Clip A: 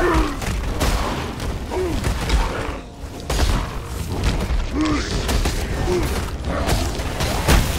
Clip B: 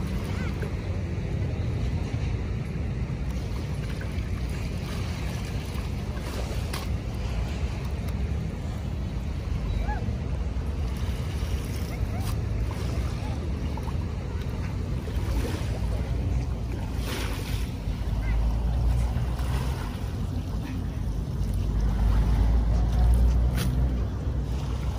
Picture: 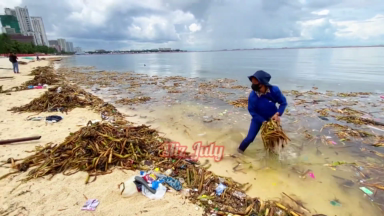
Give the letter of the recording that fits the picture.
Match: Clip B